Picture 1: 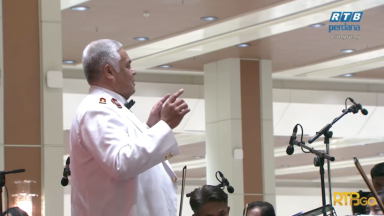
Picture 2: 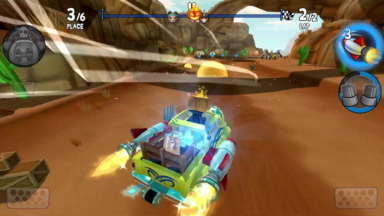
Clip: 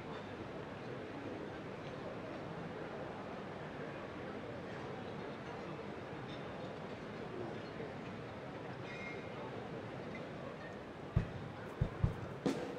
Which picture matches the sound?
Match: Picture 1